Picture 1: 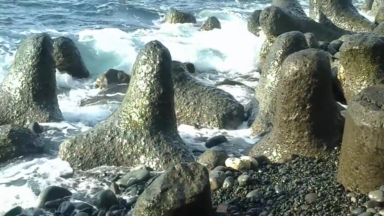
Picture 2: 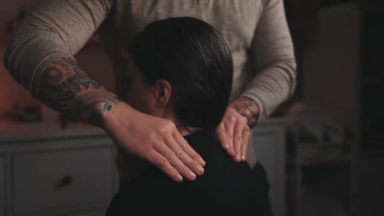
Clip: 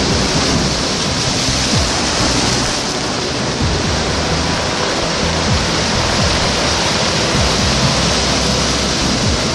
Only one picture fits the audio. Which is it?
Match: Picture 1